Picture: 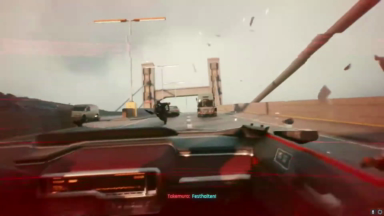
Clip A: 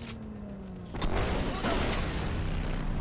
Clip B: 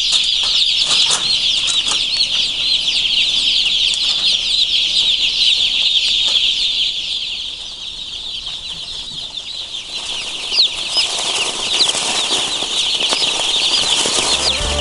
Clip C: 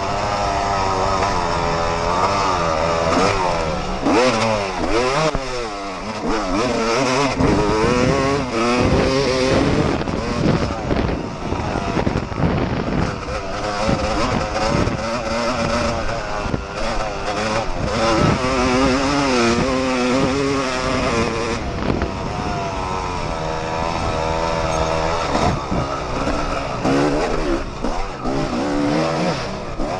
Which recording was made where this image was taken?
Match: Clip A